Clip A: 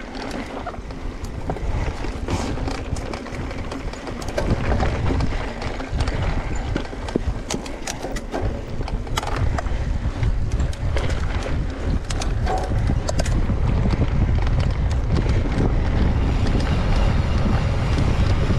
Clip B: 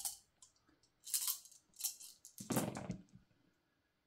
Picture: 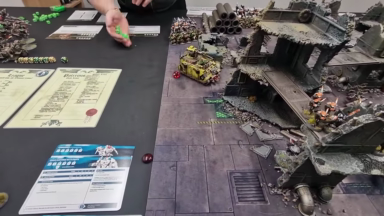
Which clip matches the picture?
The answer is B